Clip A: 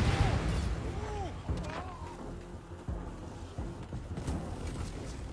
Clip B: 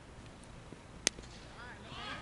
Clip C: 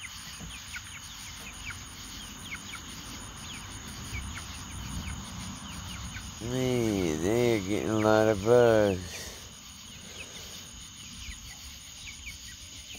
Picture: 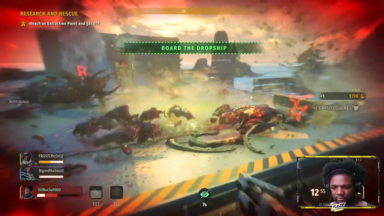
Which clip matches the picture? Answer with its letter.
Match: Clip A